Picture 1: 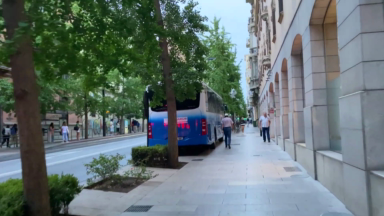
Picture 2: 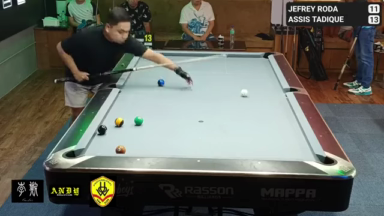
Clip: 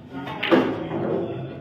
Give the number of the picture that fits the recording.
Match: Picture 2